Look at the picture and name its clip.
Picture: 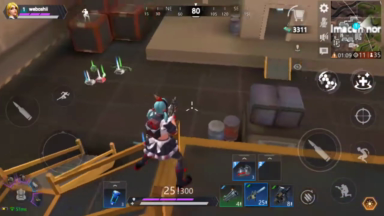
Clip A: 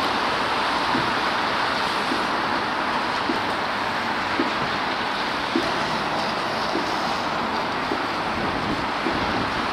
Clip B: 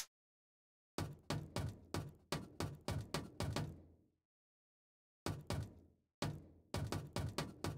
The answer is B